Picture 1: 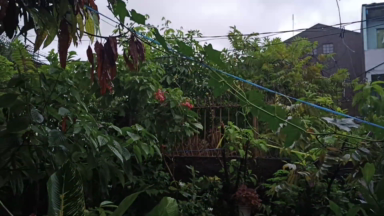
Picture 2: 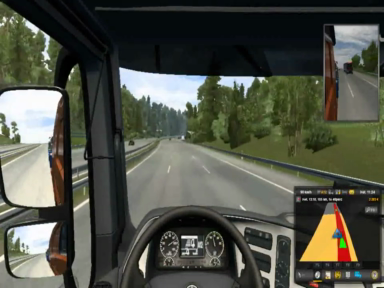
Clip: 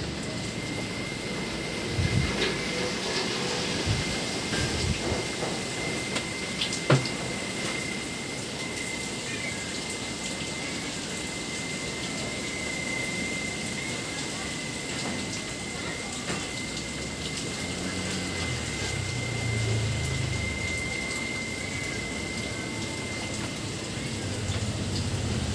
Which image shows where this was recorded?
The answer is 1